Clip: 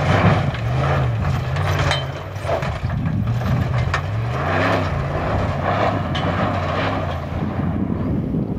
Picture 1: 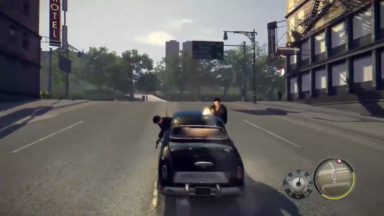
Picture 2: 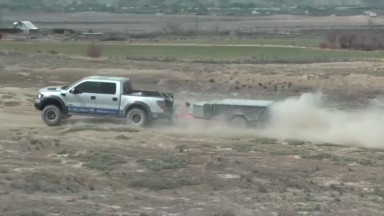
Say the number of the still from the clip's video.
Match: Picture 2